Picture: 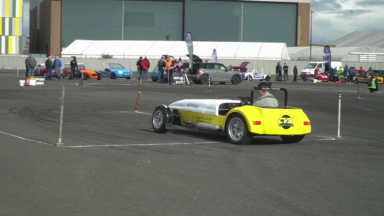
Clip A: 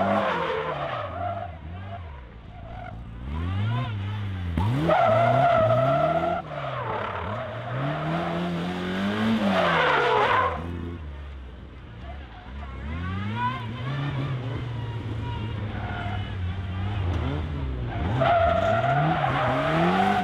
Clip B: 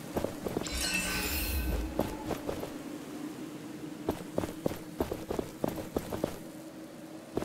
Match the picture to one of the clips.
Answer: A